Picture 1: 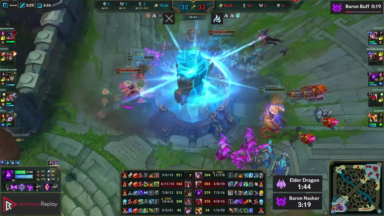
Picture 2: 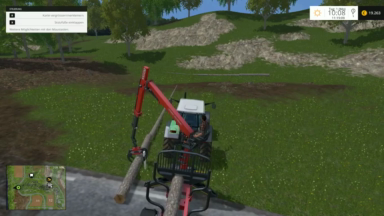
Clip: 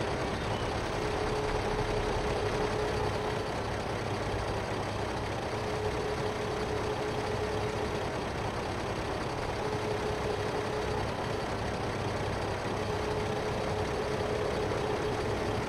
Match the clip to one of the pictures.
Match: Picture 2